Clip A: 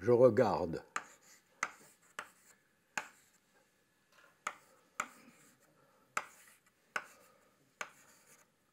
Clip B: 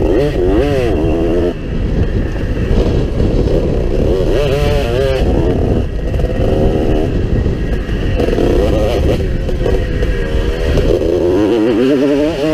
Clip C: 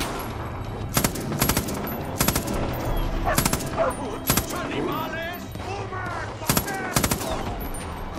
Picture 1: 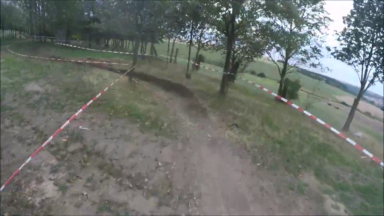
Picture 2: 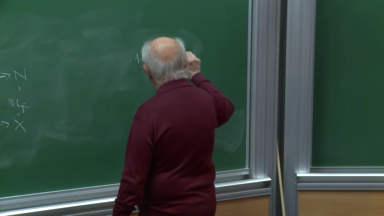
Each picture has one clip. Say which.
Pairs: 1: B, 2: A